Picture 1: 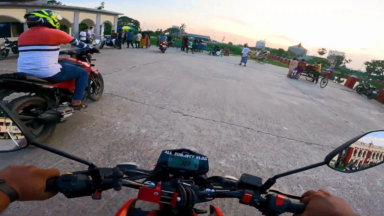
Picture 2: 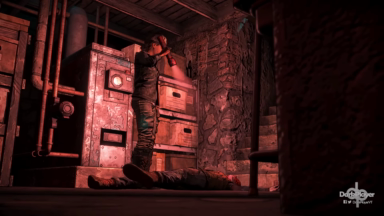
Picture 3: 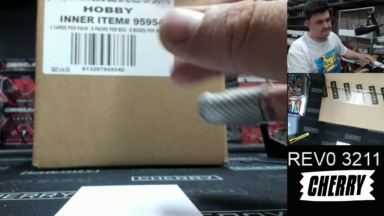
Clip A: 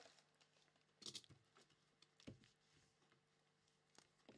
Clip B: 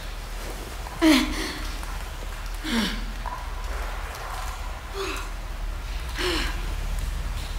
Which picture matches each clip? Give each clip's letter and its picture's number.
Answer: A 3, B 2